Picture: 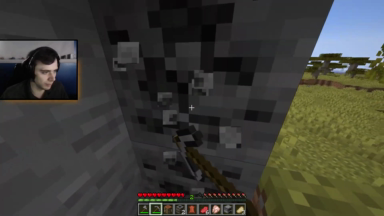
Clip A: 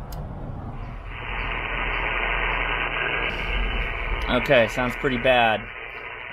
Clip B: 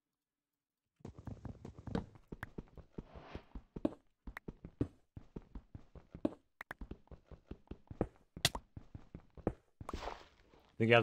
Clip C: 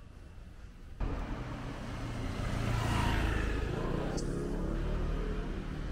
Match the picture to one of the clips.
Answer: B